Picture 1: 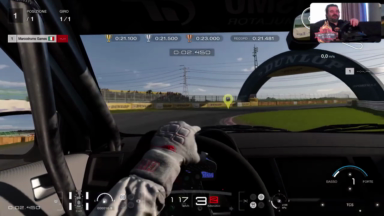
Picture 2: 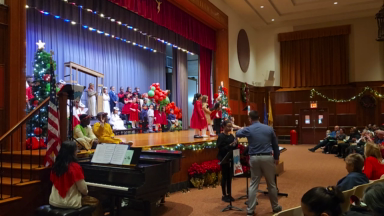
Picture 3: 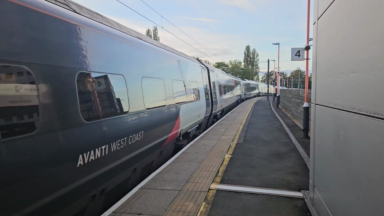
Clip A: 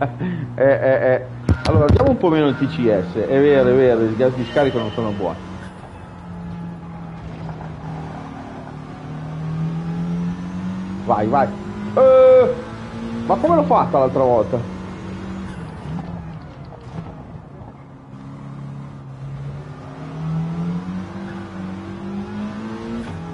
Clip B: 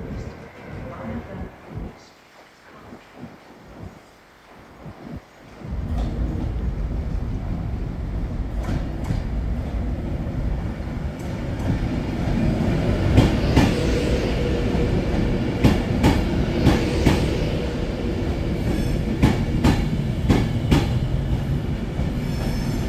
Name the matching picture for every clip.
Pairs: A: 1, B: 3